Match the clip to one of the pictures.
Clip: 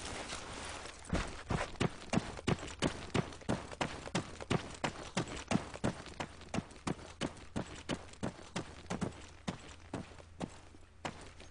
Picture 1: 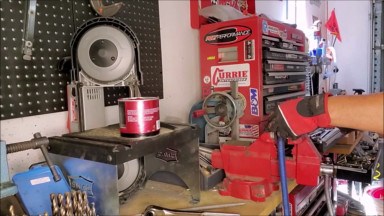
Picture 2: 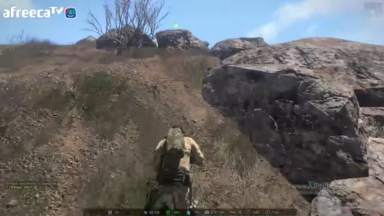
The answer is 2